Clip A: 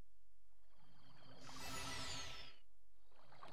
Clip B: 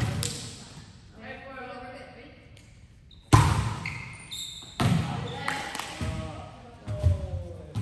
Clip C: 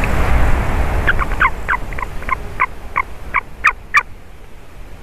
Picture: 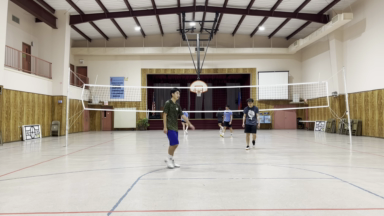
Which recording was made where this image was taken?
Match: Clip B